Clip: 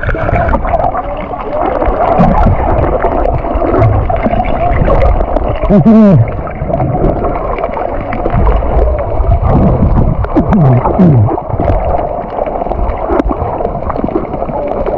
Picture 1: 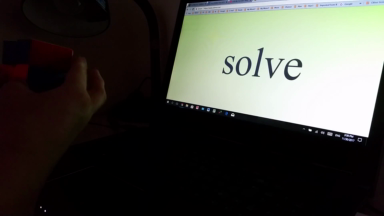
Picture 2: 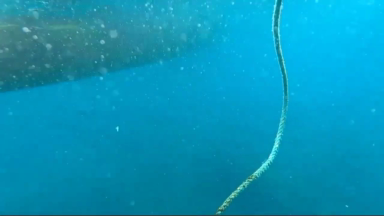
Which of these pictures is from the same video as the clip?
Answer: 2